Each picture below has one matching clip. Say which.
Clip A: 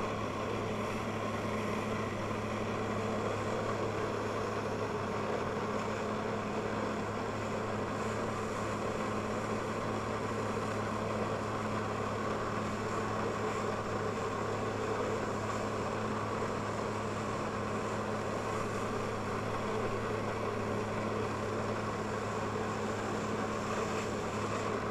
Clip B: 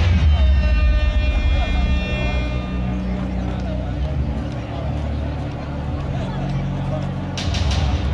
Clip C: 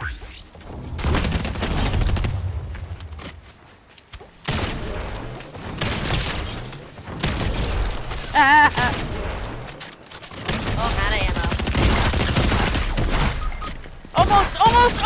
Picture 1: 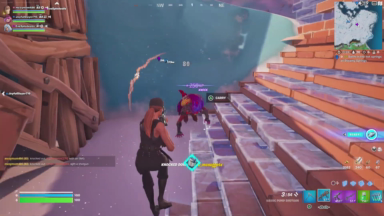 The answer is C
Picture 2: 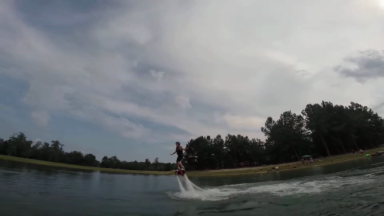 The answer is A